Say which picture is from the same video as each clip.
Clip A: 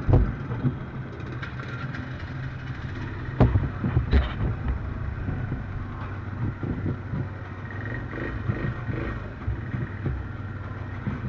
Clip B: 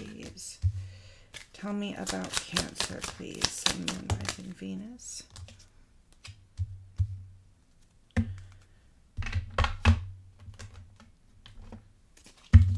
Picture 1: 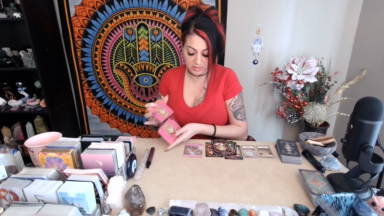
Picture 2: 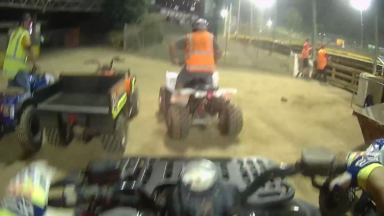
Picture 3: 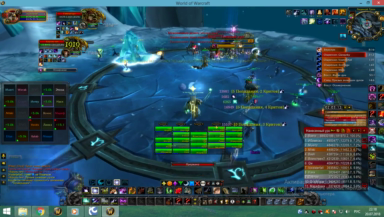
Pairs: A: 2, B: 1